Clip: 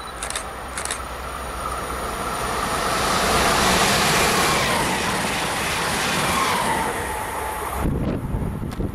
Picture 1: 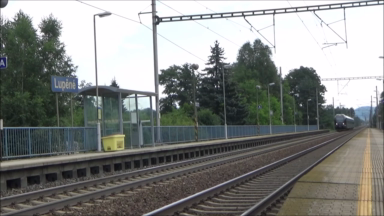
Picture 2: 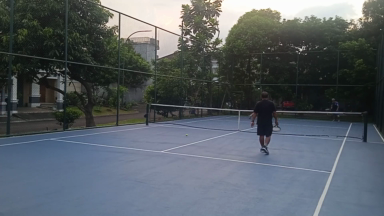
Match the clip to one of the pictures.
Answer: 1